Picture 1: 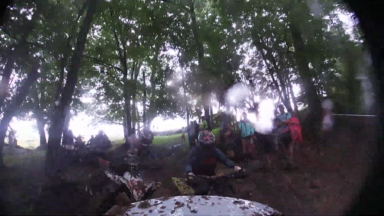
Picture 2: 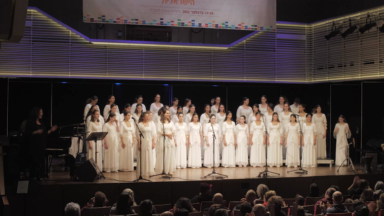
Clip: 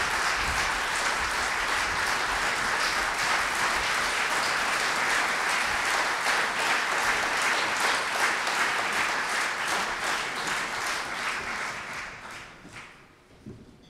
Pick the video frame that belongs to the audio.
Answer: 2